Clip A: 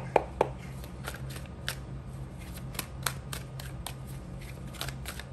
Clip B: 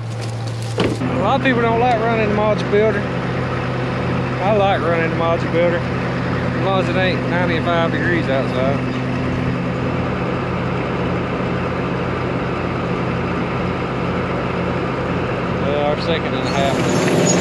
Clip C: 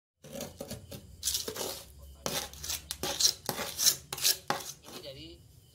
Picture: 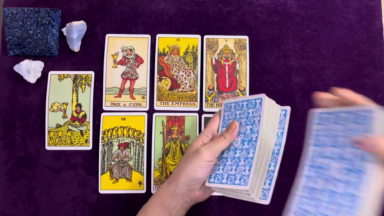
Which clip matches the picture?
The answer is A